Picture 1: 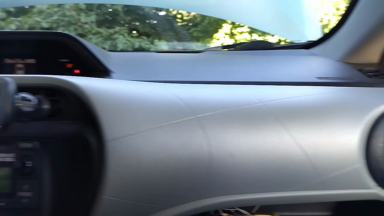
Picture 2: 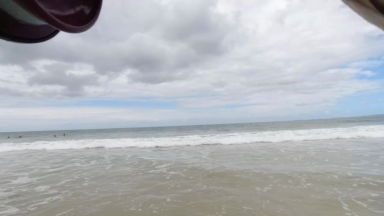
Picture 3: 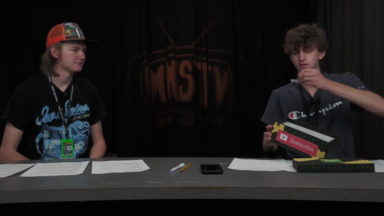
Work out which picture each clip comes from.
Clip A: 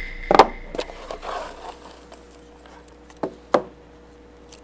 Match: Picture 3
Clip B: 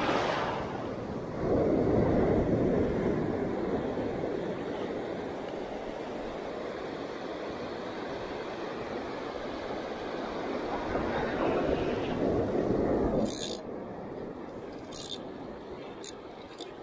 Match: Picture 2